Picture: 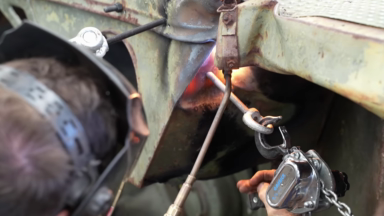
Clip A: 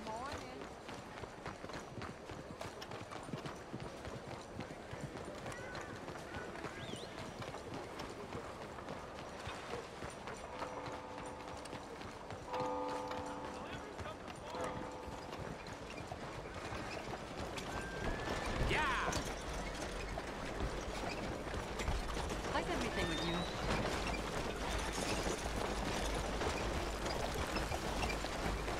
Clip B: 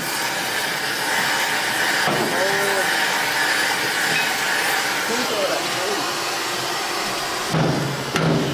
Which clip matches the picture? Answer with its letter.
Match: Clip B